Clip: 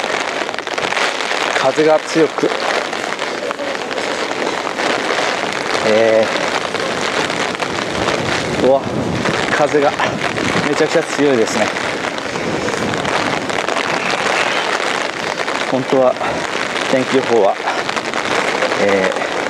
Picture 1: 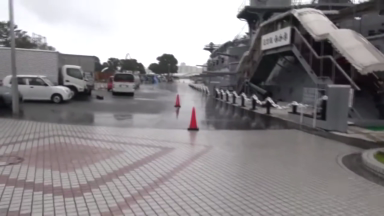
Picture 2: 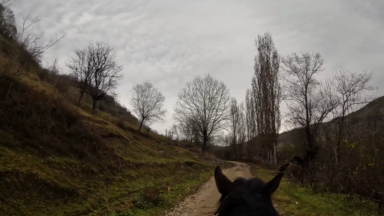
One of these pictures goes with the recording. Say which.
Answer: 1